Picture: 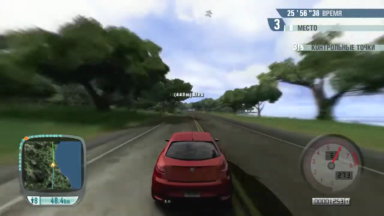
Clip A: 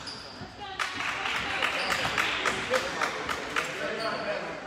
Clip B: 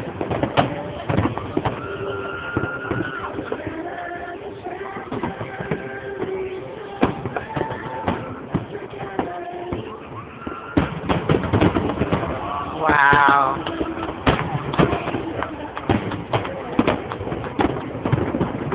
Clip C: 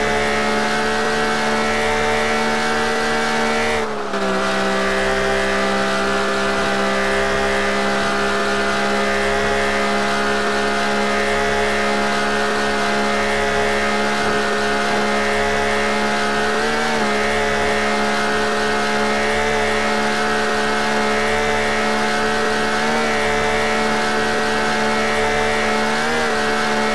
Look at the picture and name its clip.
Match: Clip C